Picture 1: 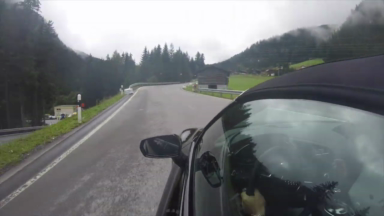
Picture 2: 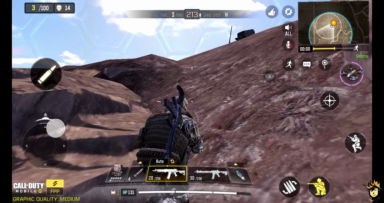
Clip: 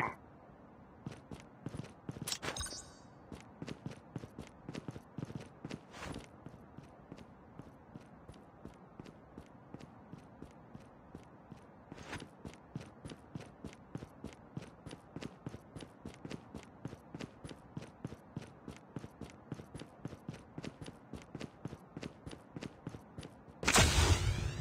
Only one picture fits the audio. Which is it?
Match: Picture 2